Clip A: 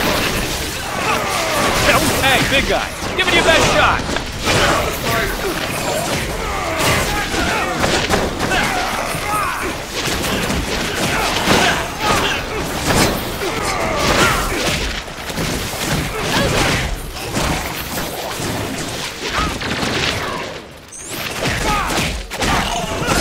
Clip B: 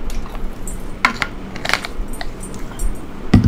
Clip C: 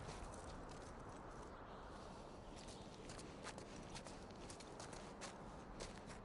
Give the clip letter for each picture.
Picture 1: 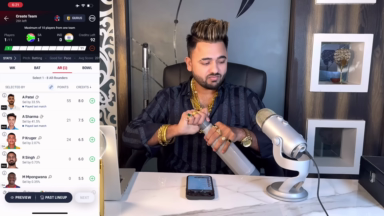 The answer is B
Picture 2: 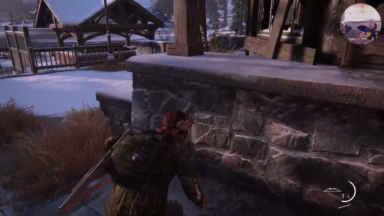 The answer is C